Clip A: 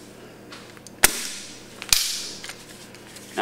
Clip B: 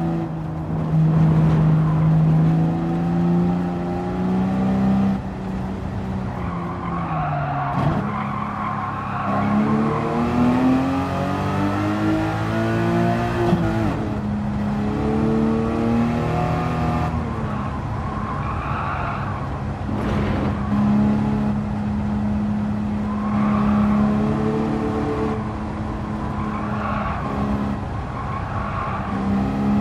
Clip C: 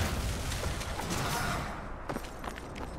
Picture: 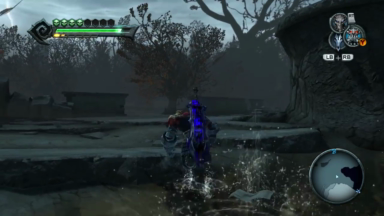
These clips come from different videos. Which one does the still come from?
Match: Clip C